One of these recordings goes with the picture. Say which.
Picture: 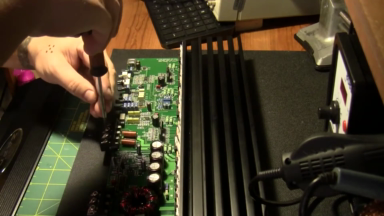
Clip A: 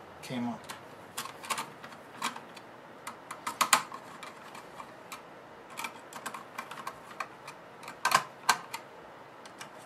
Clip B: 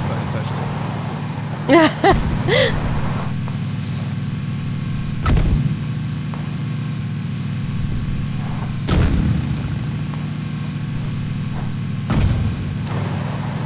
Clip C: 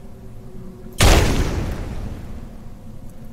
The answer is A